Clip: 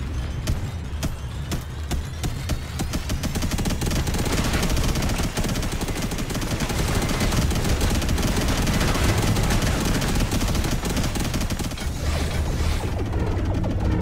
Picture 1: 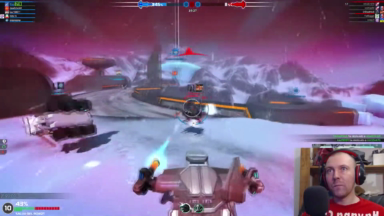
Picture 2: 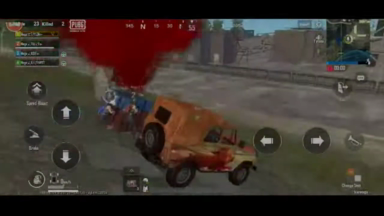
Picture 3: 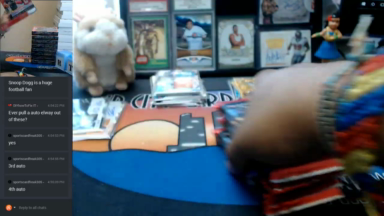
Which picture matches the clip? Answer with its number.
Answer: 1